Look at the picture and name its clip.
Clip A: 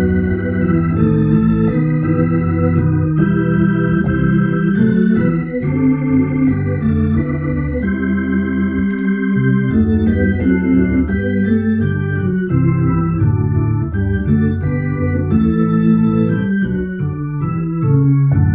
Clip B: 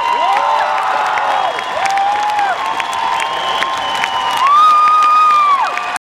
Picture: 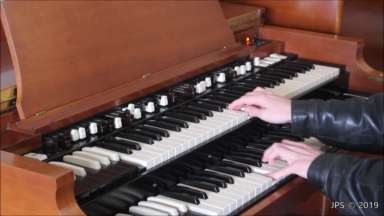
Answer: A